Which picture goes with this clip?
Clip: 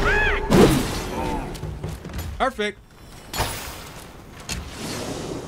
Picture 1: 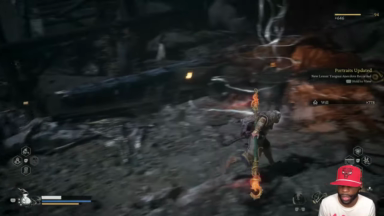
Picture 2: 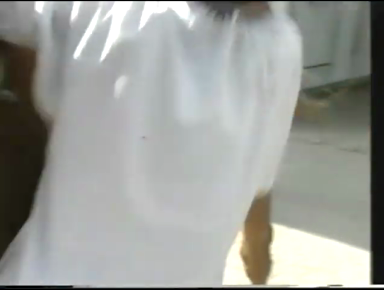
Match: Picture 1